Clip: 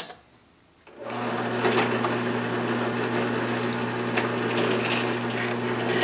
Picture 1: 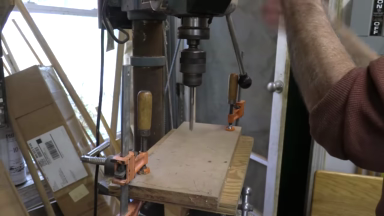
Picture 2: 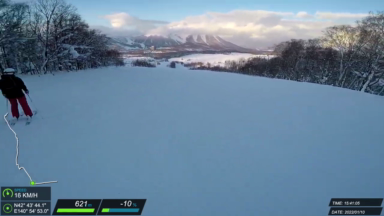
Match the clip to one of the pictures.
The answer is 1